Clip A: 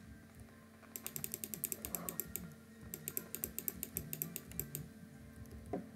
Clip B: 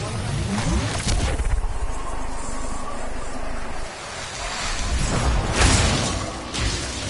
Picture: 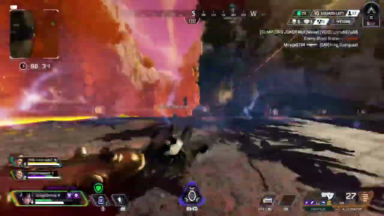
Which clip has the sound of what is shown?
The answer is B